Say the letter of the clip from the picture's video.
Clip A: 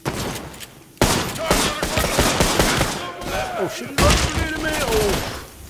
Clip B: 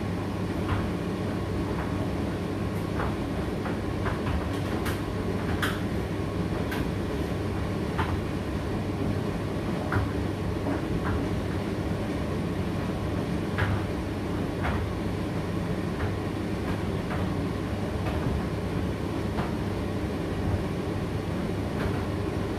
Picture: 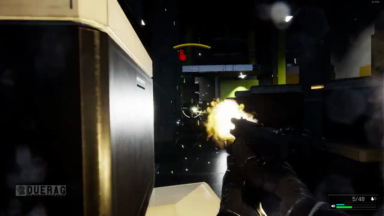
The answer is A